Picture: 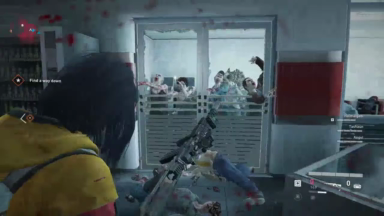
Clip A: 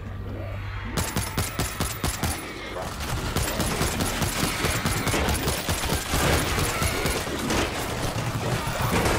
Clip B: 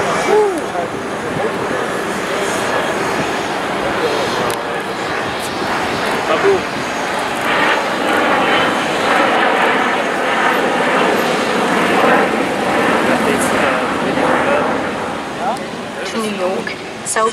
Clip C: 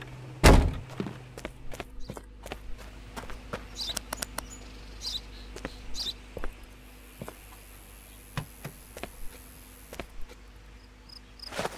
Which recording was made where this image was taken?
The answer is A